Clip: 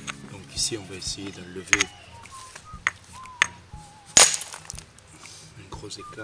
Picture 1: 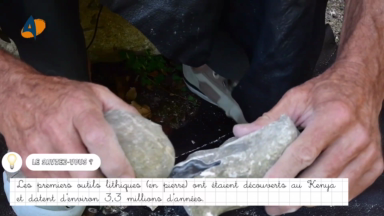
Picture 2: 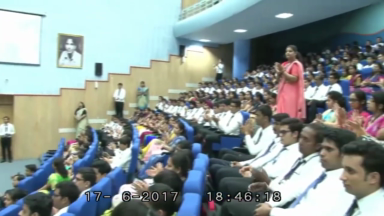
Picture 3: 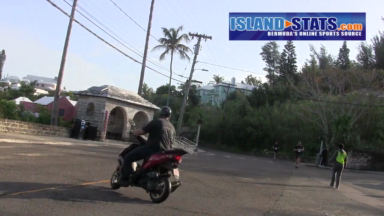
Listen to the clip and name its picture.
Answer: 1